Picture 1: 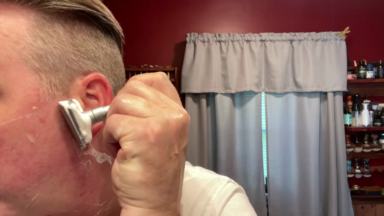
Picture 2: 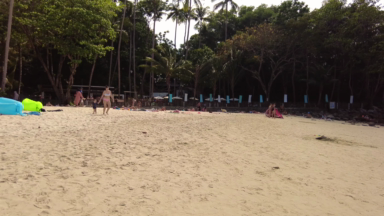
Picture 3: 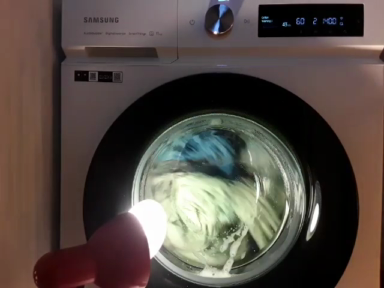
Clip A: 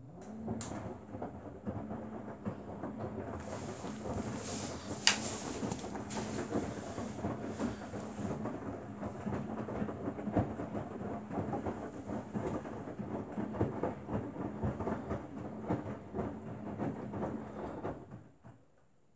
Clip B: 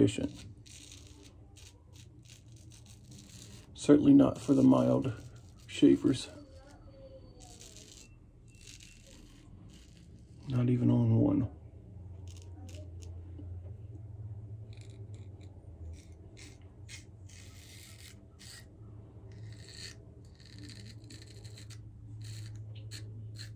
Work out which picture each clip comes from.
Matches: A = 3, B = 1